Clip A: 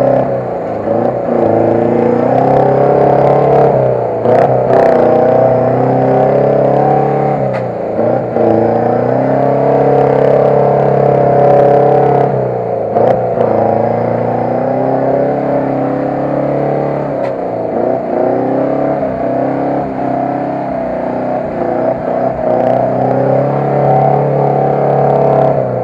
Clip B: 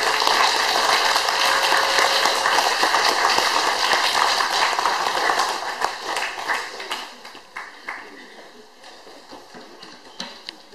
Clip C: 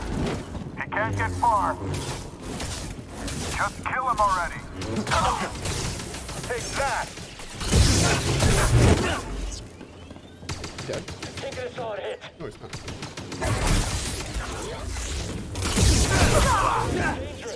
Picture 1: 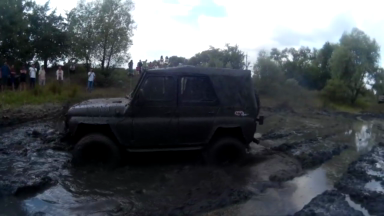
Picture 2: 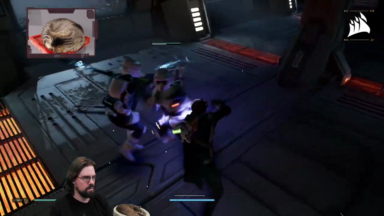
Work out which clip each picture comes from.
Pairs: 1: A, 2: C